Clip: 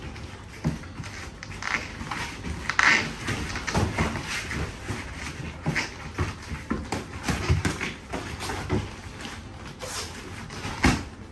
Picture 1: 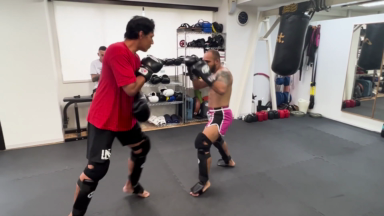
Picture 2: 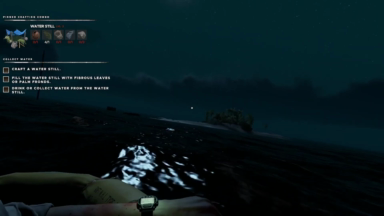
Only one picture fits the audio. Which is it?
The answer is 1